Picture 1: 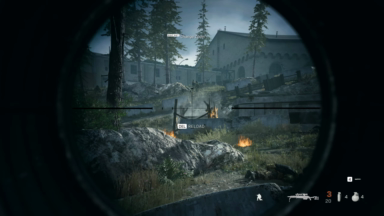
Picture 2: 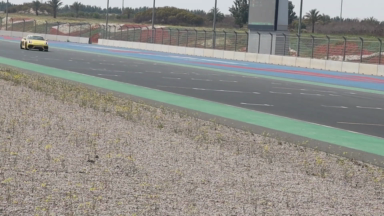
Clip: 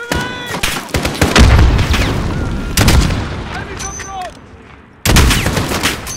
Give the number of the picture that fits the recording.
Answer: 1